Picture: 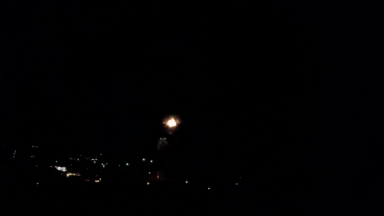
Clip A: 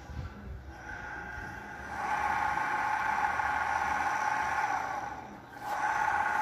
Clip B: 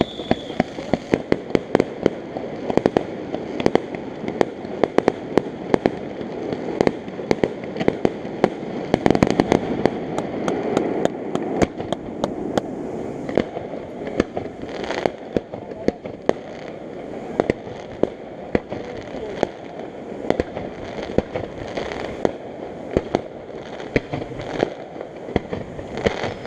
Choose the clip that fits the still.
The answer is B